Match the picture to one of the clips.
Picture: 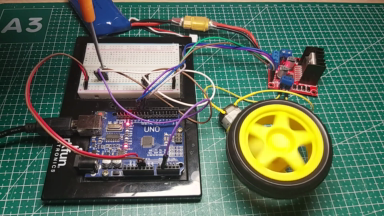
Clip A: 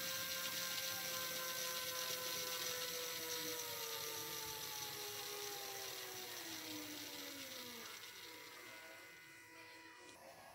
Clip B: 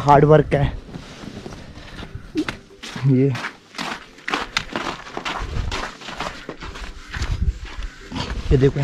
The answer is A